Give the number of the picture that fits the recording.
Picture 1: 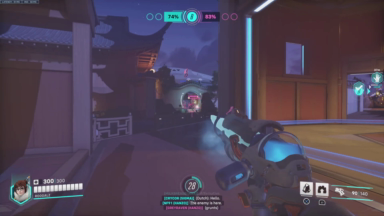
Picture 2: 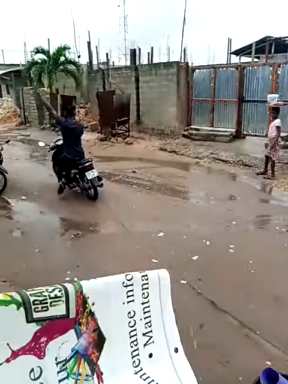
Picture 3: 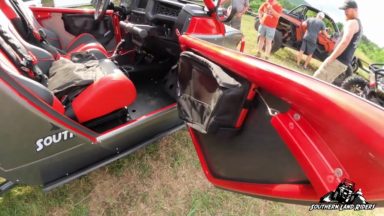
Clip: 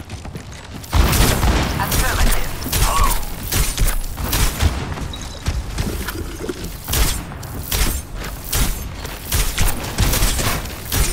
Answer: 1